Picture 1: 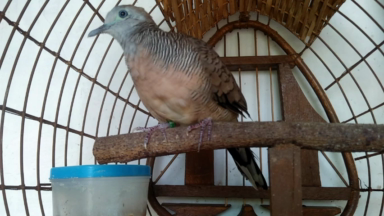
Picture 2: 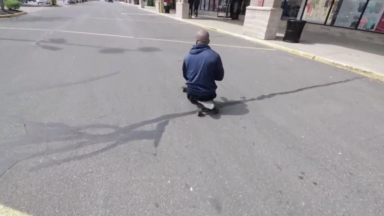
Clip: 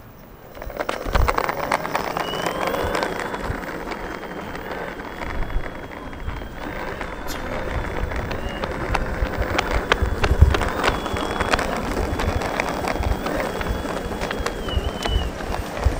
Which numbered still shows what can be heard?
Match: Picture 2